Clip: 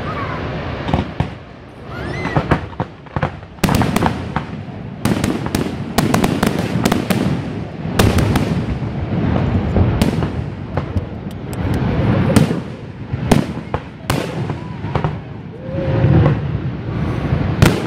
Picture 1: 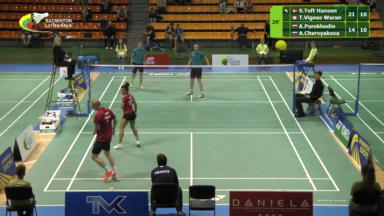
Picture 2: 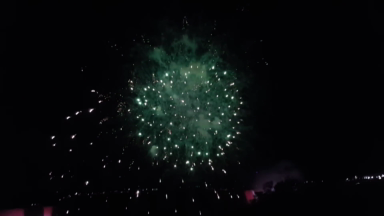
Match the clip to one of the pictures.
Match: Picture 2